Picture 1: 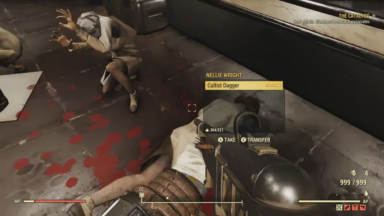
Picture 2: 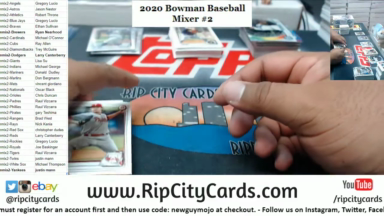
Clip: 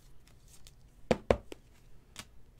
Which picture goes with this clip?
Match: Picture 2